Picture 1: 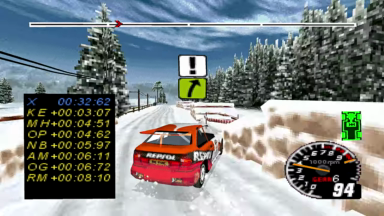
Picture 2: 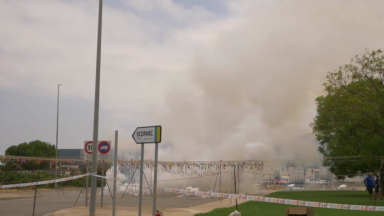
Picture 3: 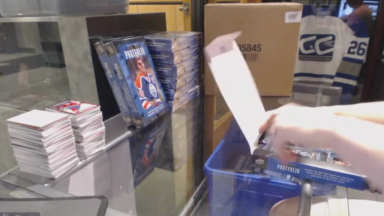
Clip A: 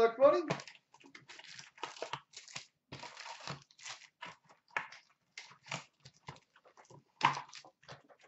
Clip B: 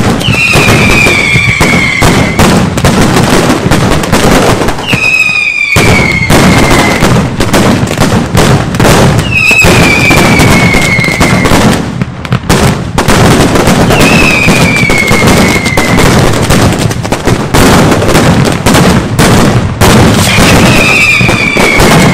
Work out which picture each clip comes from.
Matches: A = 3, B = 2